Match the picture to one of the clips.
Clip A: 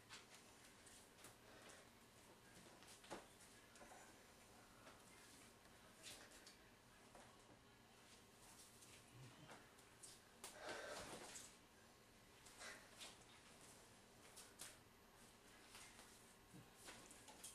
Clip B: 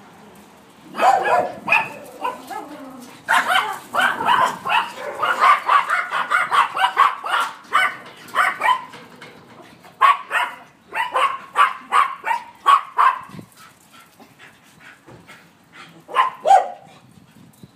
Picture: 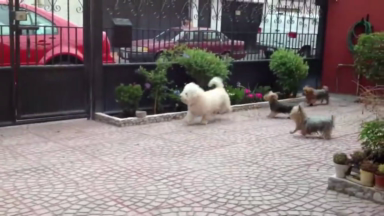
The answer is B